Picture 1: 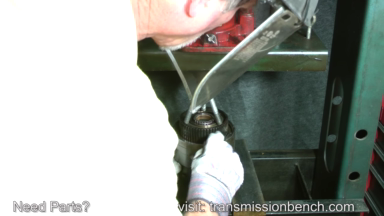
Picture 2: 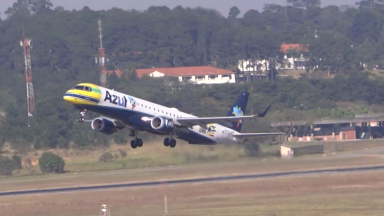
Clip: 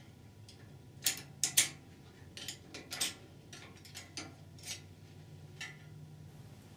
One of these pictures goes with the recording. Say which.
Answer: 1